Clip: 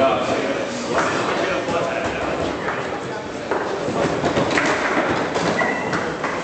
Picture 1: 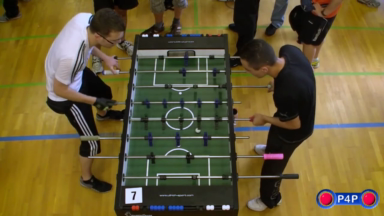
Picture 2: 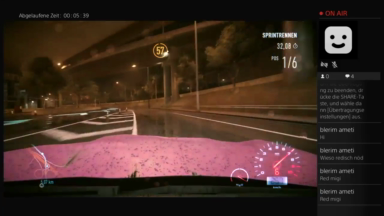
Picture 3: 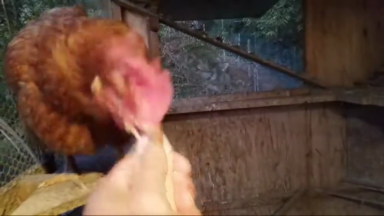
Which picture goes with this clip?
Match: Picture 1